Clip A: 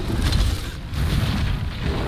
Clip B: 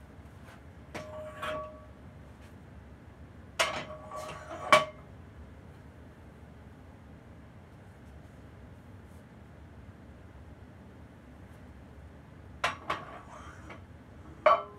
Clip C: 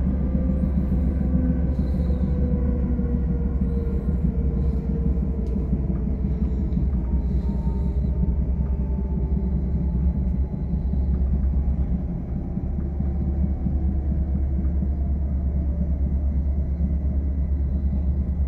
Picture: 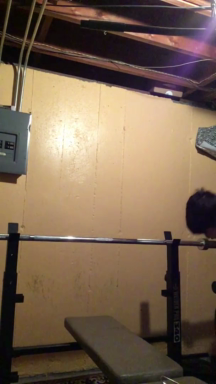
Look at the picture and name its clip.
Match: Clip B